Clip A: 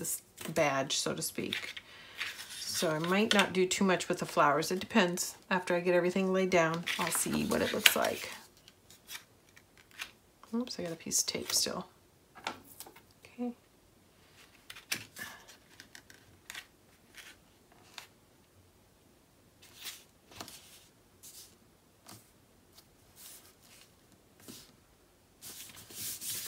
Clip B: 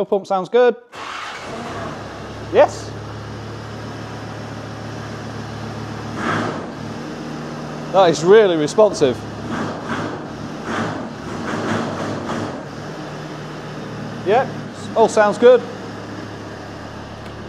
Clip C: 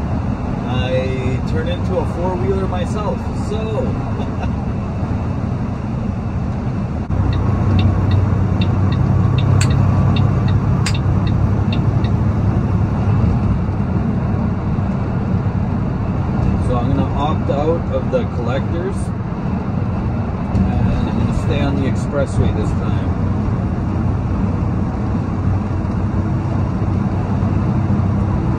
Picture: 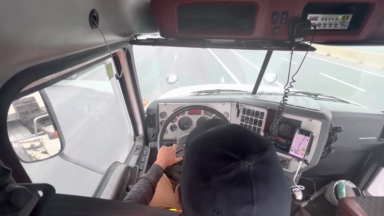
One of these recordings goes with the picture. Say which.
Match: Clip C